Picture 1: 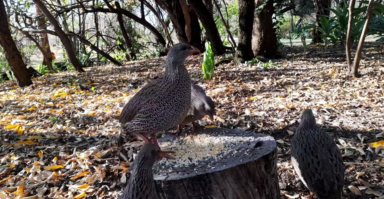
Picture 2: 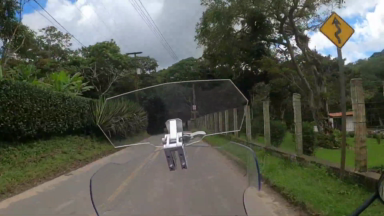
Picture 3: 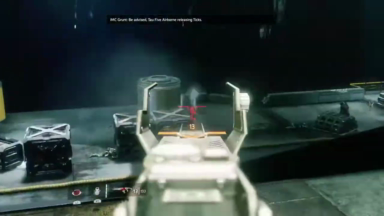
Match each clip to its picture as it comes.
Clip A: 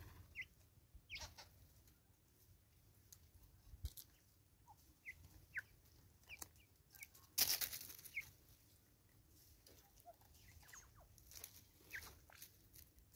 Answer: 1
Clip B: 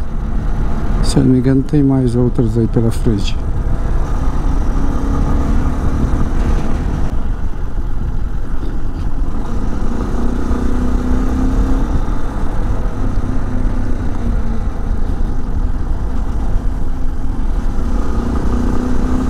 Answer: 2